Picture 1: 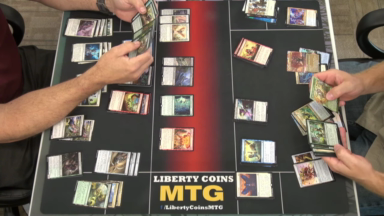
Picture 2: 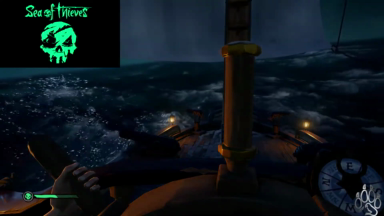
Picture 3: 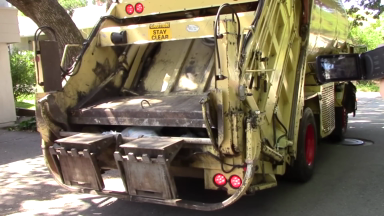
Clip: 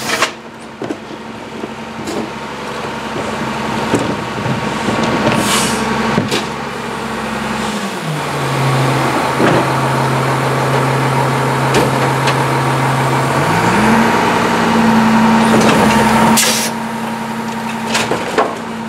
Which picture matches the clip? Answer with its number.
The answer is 3